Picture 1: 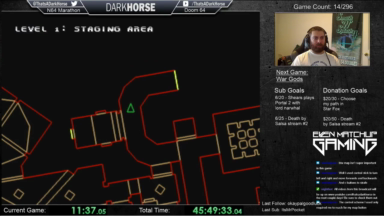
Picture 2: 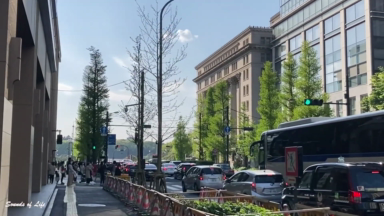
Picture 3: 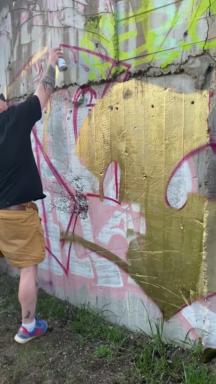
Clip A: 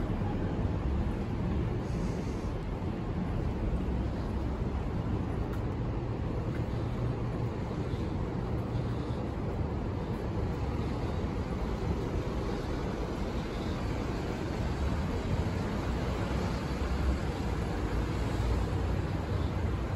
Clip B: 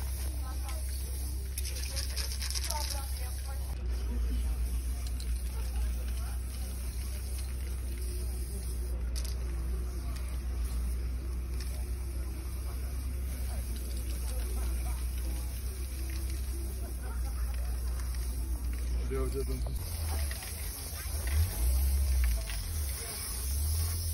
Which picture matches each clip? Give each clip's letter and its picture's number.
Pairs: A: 2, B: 3